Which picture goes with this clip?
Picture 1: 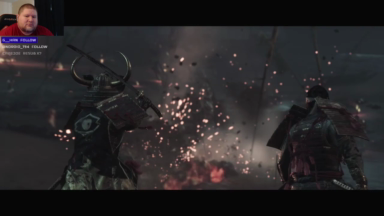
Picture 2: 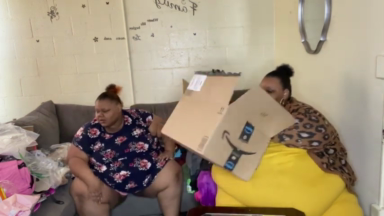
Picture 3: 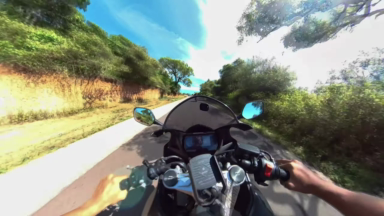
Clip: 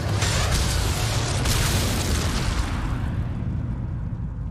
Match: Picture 1